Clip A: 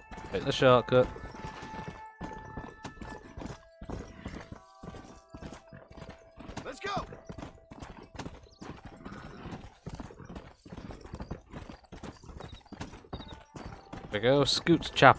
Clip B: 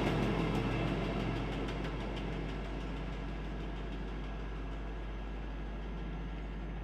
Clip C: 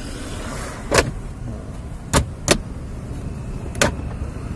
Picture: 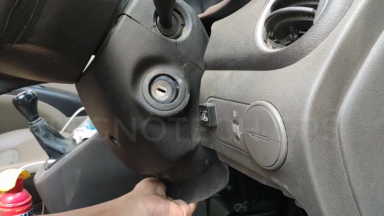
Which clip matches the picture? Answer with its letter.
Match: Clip C